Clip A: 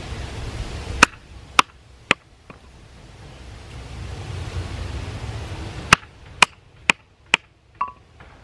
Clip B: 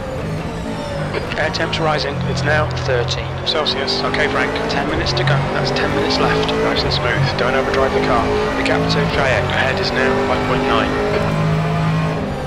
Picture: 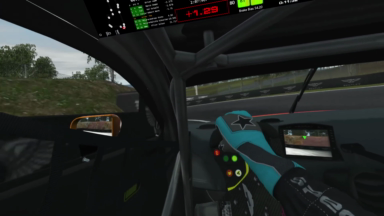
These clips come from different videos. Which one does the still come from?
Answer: B